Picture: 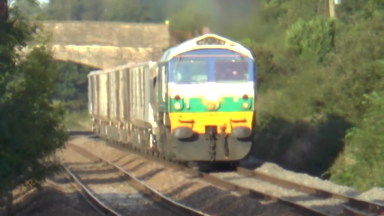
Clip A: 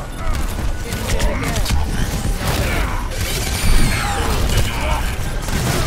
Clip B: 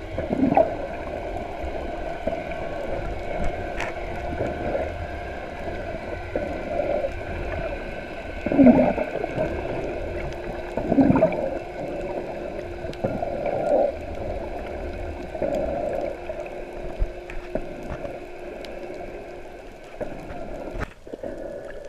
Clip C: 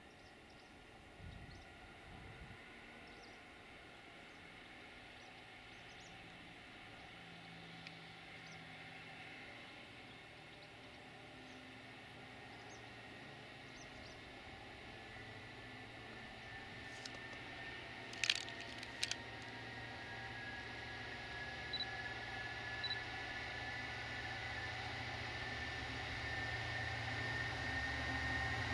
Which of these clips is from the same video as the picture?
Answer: C